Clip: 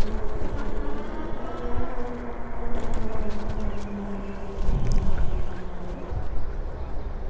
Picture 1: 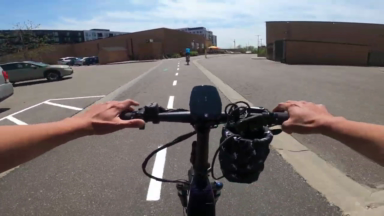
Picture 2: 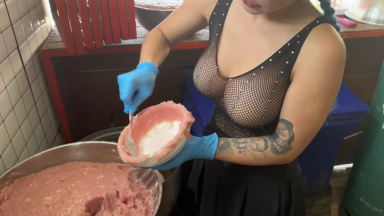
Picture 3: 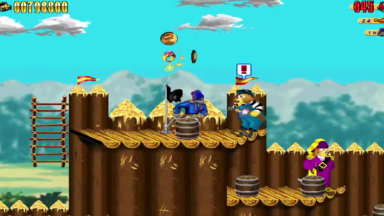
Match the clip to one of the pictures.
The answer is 1